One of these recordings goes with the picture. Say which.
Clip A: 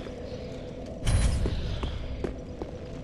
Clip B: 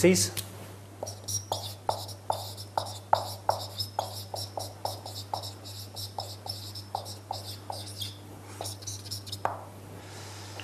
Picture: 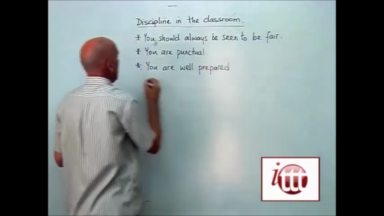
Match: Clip B